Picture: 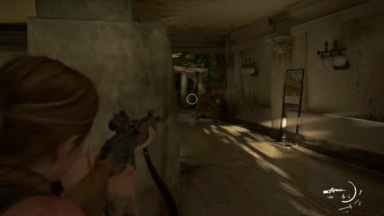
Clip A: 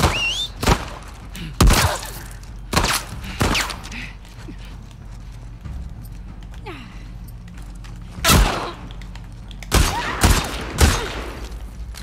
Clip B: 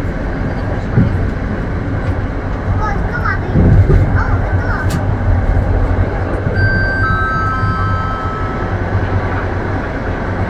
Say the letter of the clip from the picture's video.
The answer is A